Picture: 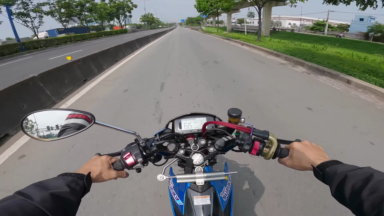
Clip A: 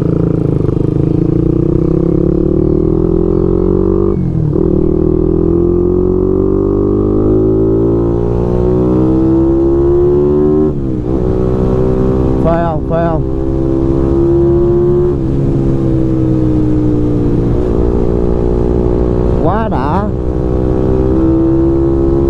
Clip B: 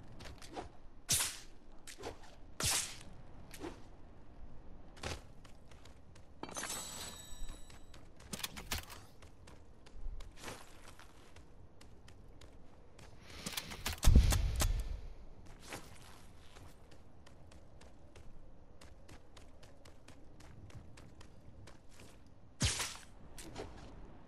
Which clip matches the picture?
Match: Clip A